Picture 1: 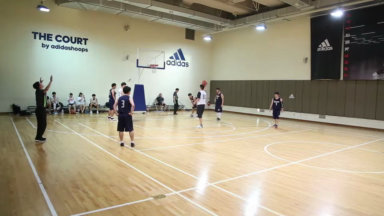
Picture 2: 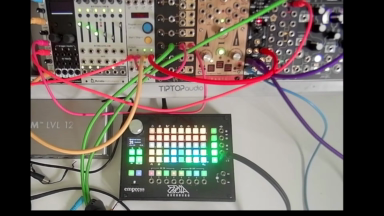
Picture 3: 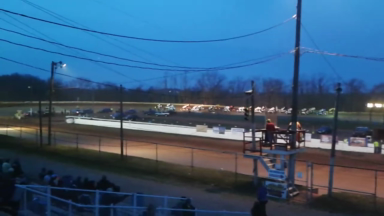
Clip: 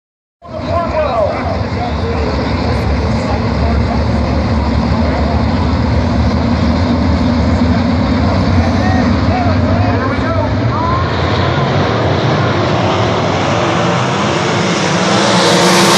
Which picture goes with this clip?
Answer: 3